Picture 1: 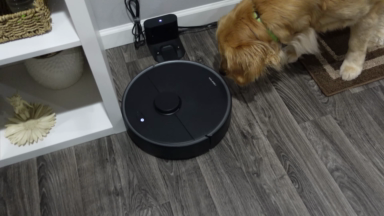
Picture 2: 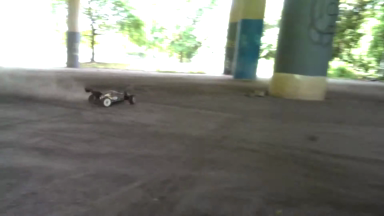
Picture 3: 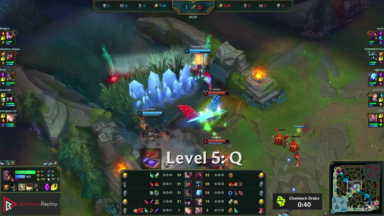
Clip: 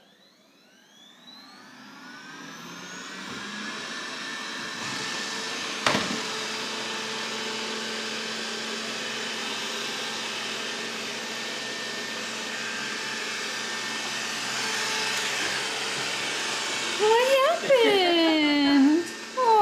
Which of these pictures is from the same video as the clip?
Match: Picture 1